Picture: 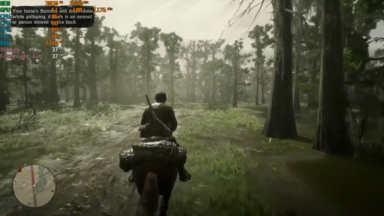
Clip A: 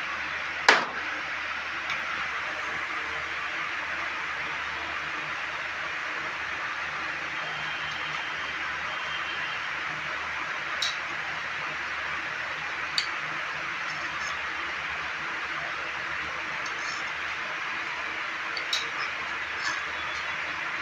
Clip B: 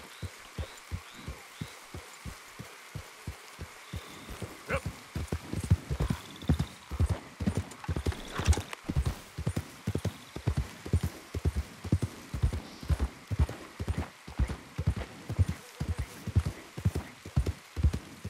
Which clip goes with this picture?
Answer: B